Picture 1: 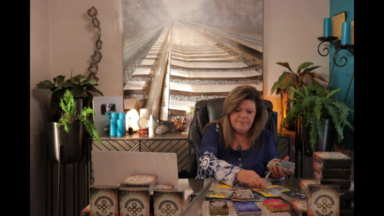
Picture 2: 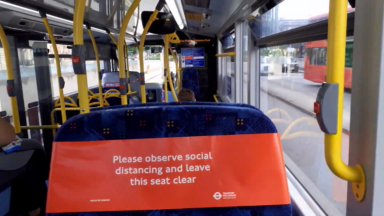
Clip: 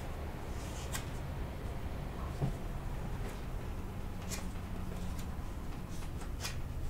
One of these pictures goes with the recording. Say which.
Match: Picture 1